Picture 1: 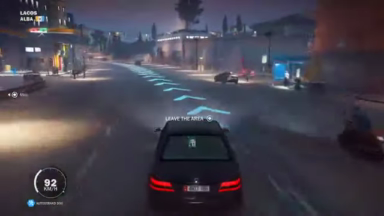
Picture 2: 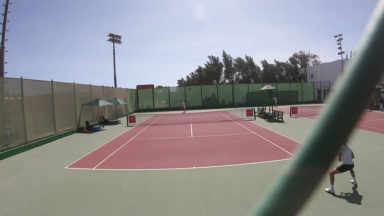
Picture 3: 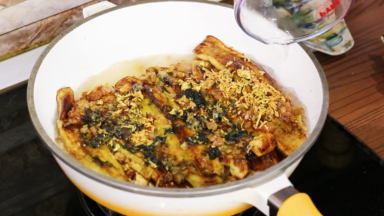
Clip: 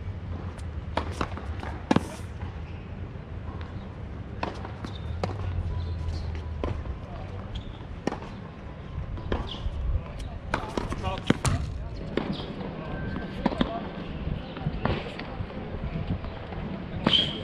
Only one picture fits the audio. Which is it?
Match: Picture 2